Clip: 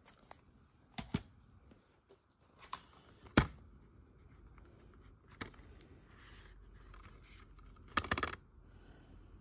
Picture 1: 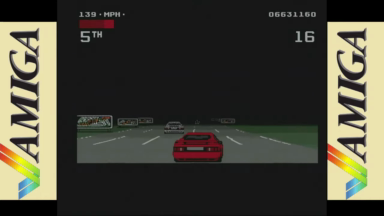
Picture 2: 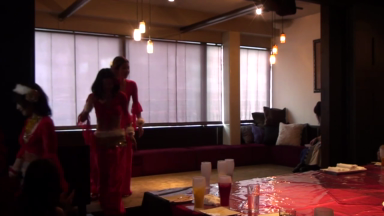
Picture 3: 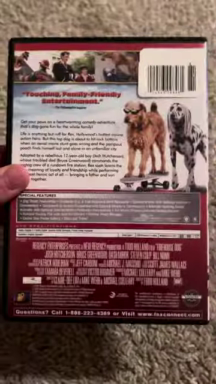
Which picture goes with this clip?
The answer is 3